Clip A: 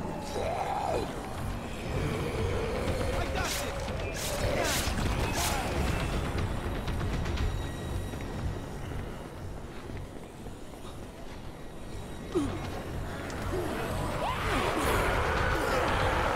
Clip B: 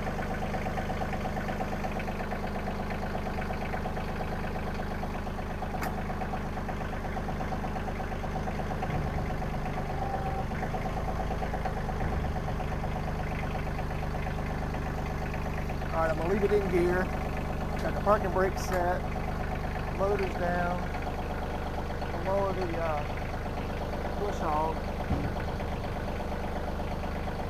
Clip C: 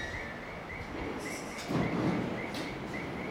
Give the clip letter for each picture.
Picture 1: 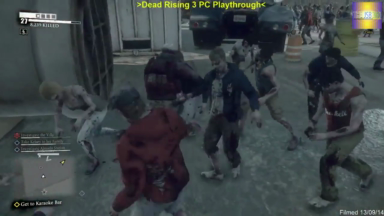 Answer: A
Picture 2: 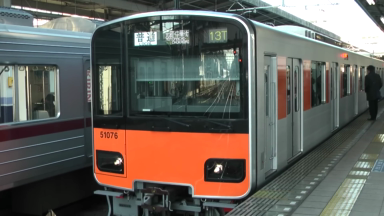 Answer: C